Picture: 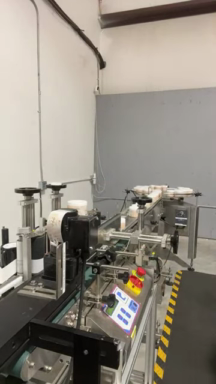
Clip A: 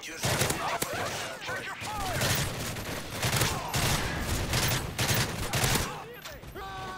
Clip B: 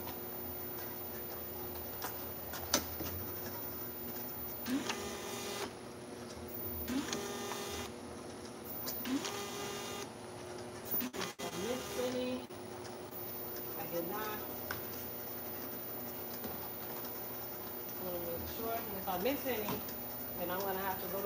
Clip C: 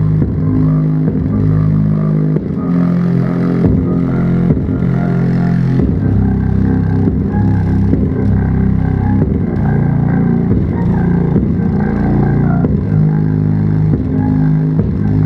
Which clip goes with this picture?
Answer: B